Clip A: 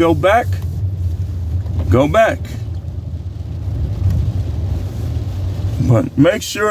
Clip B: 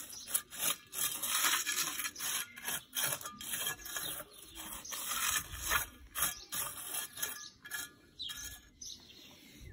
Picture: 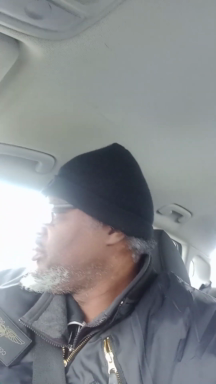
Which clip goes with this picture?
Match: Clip A